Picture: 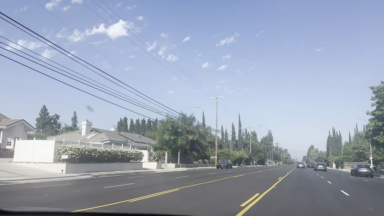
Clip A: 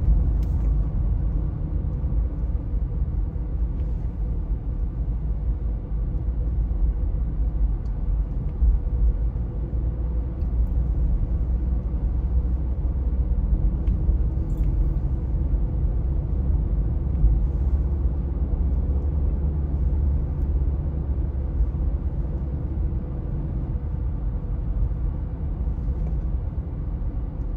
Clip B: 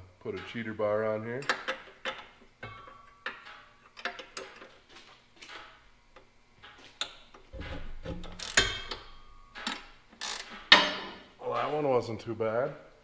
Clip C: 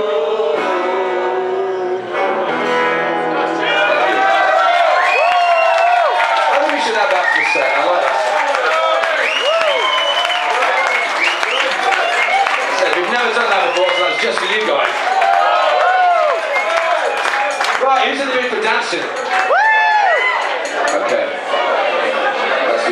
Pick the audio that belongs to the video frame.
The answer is A